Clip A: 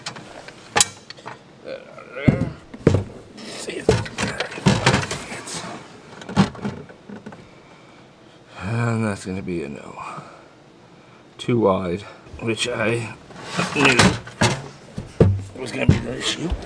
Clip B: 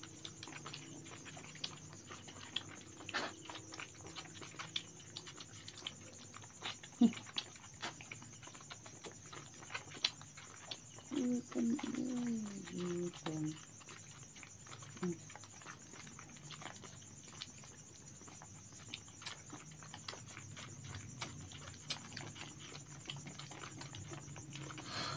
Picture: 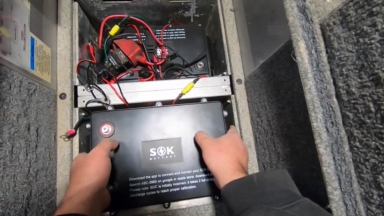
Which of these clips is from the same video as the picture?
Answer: A